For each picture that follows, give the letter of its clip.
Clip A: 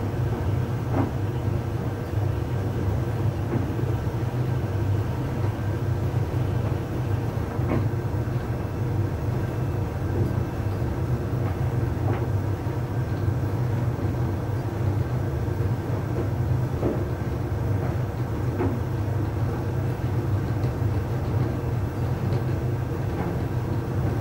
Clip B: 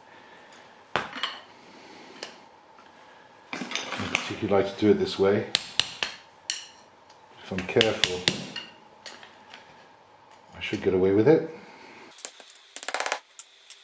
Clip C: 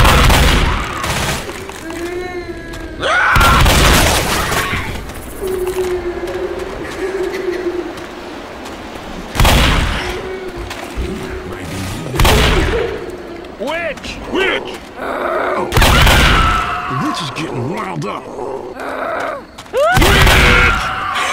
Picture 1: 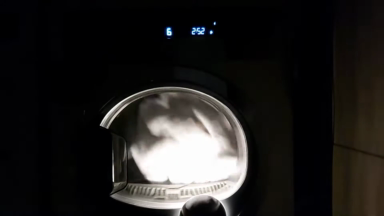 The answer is A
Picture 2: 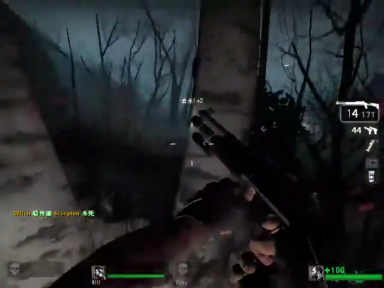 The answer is C